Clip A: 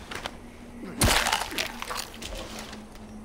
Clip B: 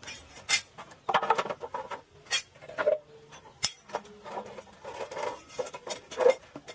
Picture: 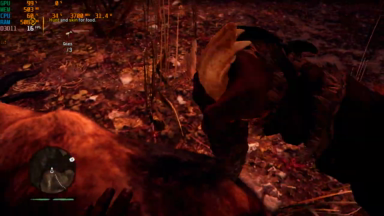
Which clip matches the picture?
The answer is A